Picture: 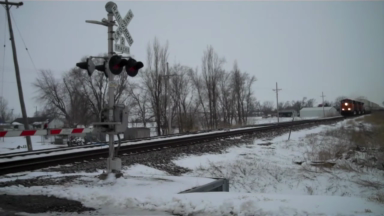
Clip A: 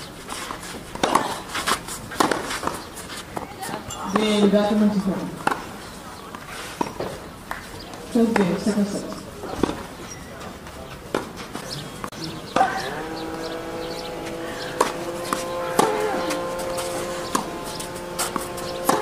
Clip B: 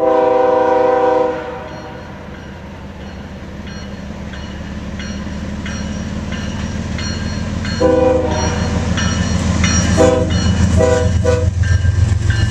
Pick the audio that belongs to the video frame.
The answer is B